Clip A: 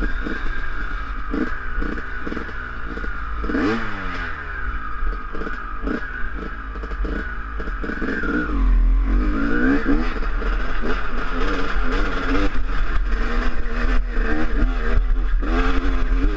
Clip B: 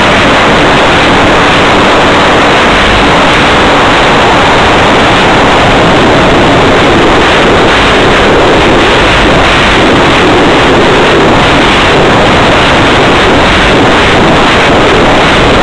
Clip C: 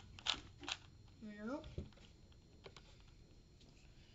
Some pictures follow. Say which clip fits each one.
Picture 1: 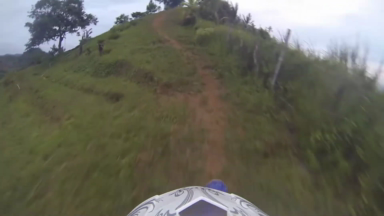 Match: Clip A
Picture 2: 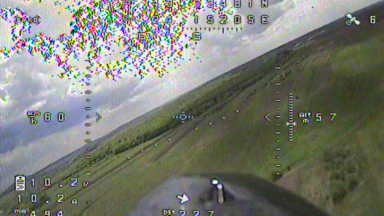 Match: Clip B